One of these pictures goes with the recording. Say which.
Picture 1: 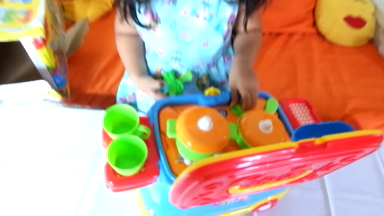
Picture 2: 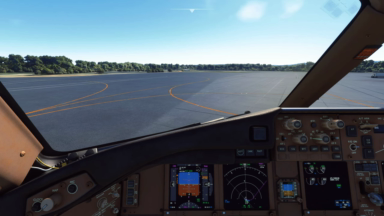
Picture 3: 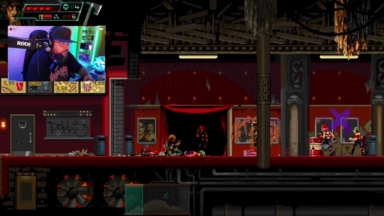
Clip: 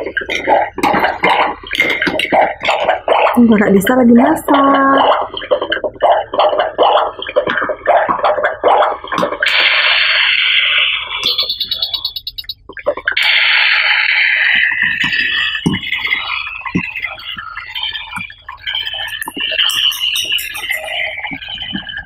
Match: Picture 1